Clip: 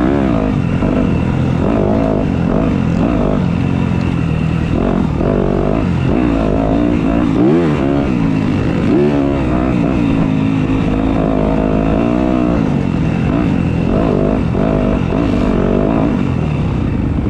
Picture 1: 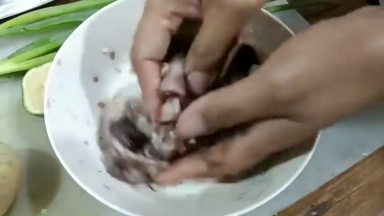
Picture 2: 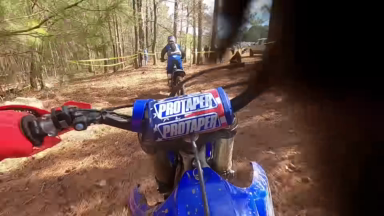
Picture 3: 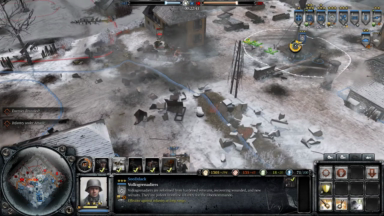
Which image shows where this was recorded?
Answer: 2